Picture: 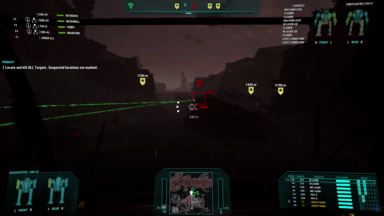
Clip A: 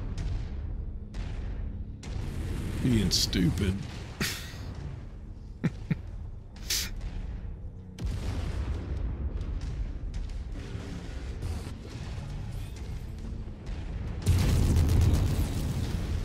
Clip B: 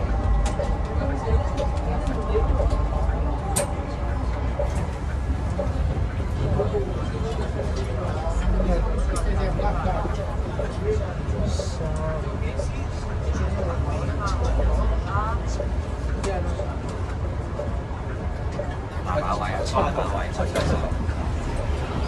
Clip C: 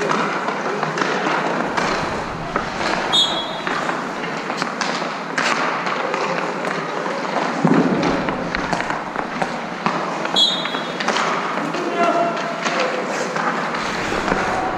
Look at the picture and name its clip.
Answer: A